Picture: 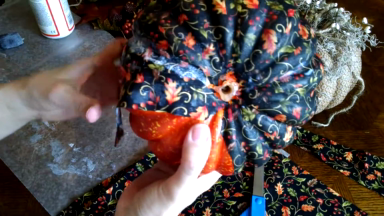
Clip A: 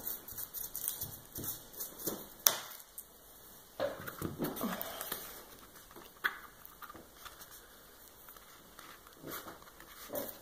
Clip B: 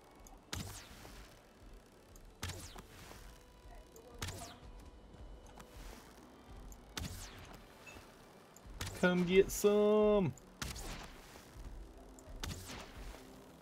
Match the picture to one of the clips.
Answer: A